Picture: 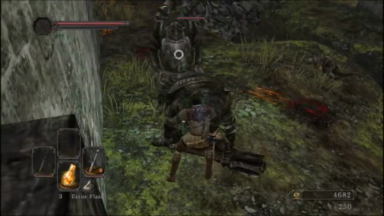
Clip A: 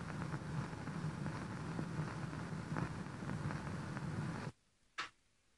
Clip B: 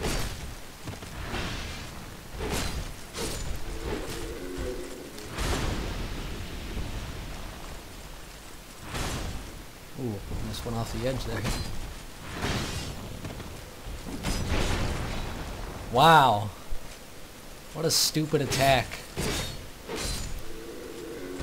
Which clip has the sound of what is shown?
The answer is B